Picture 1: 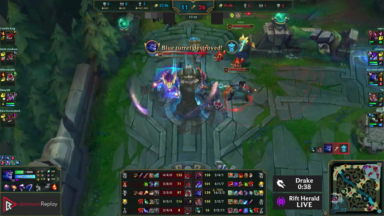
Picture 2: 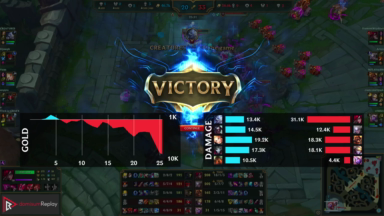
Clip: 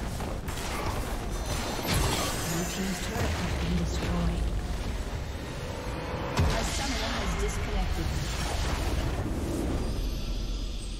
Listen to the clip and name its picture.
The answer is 1